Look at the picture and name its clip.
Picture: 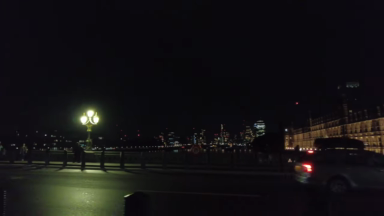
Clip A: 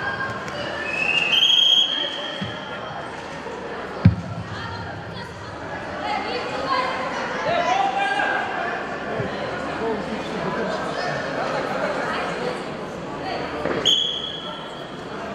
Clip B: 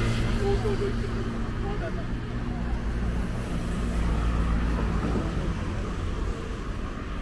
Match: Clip B